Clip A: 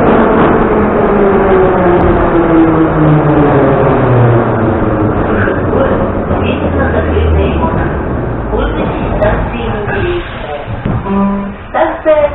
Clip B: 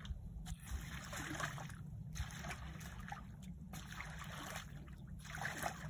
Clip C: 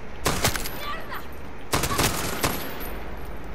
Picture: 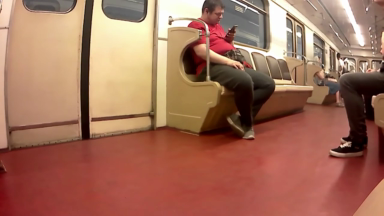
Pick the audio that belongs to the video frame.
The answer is A